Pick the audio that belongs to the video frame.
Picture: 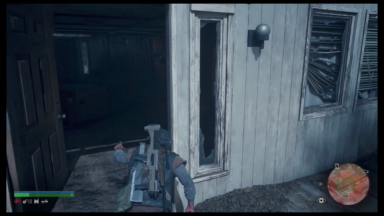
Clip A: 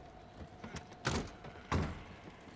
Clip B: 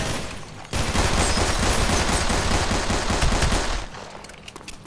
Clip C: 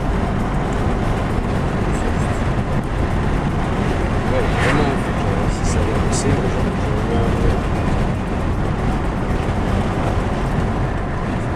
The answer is A